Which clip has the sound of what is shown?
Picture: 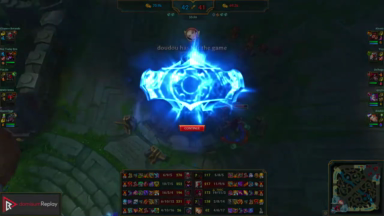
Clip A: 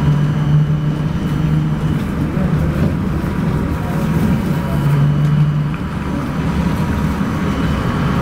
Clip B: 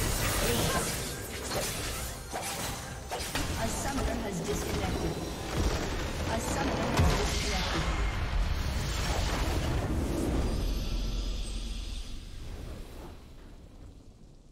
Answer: B